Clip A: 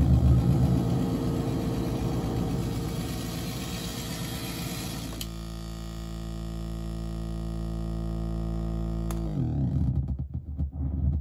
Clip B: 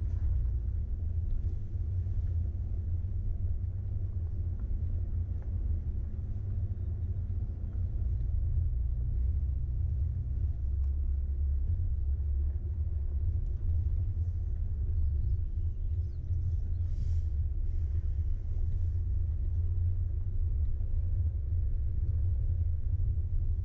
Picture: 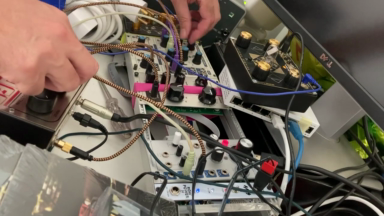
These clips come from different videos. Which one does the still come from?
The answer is A